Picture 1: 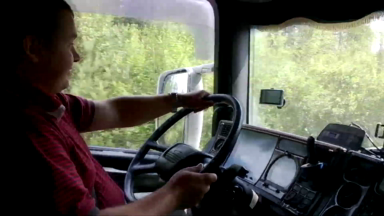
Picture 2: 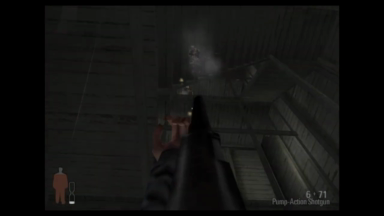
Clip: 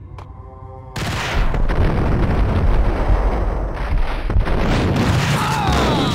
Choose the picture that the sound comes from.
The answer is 2